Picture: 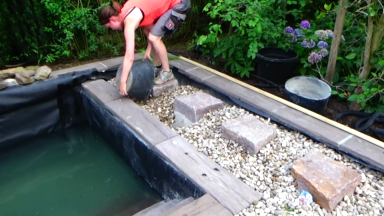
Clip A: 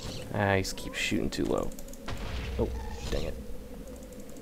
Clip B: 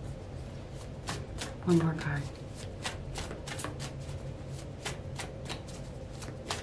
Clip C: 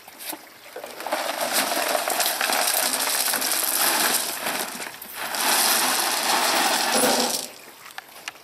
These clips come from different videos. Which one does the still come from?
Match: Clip C